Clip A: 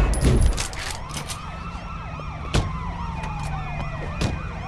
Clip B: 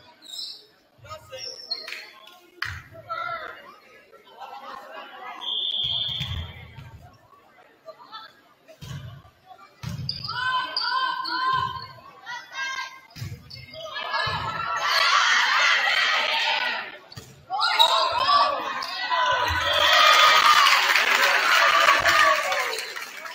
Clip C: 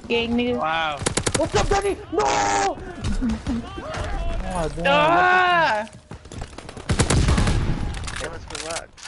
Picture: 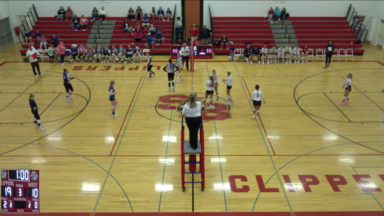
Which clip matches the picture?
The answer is B